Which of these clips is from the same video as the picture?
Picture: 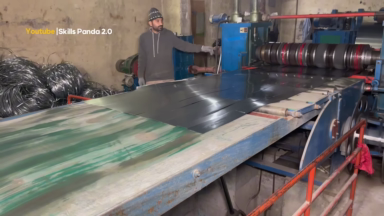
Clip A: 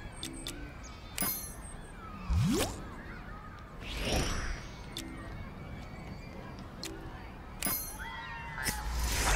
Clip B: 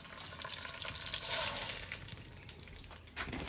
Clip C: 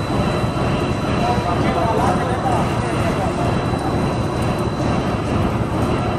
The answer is C